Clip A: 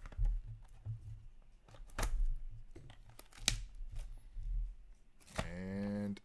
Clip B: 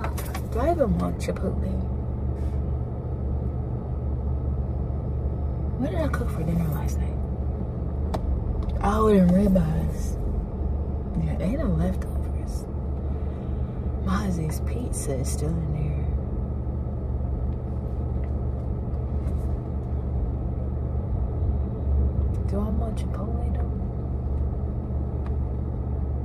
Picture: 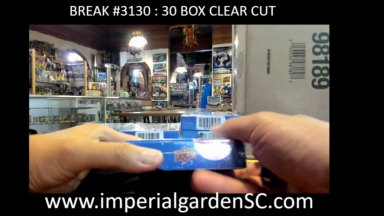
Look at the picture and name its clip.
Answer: A